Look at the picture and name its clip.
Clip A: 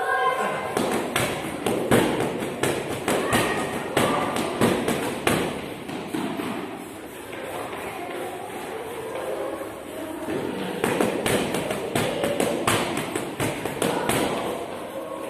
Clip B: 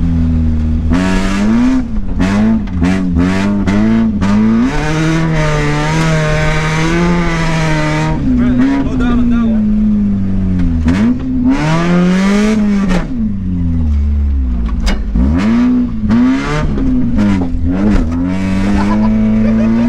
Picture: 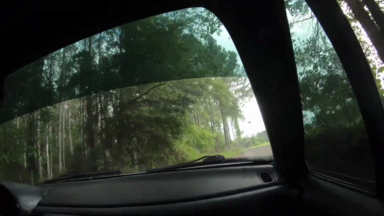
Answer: B